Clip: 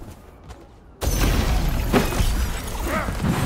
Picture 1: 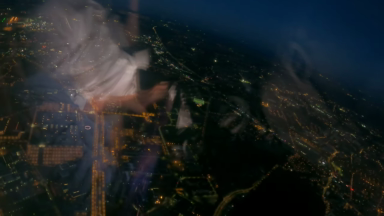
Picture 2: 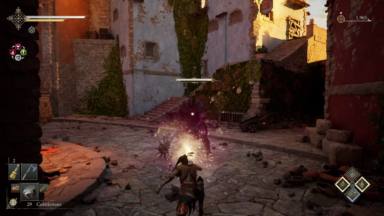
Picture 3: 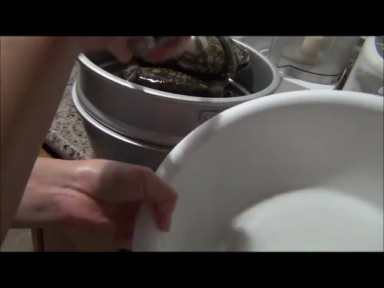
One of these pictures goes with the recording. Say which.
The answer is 2